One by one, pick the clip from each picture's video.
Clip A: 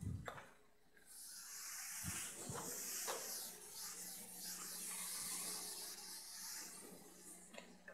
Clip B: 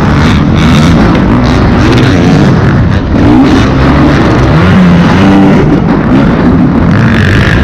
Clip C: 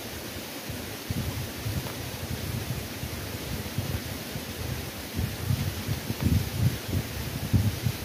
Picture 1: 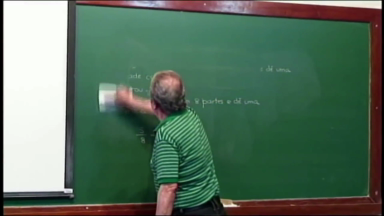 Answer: A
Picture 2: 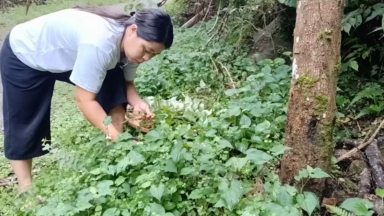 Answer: C